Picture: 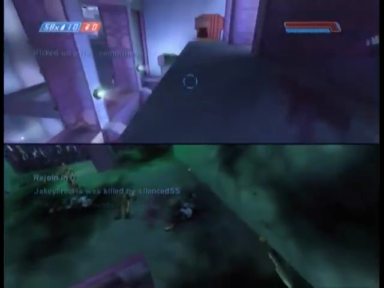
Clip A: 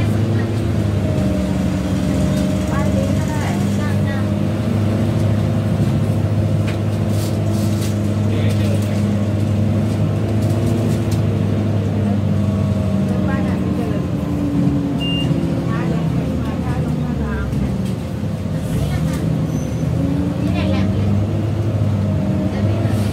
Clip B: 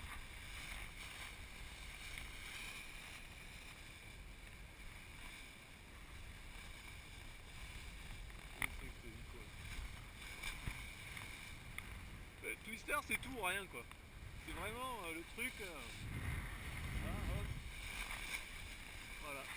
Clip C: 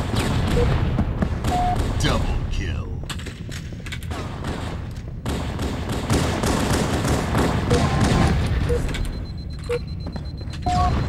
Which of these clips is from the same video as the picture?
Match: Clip C